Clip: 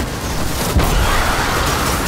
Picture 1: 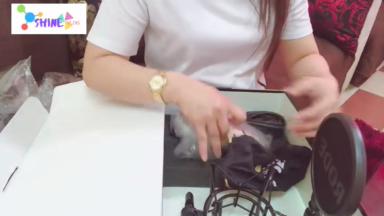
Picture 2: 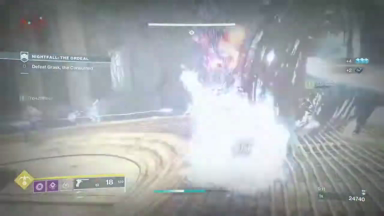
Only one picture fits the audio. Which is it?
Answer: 2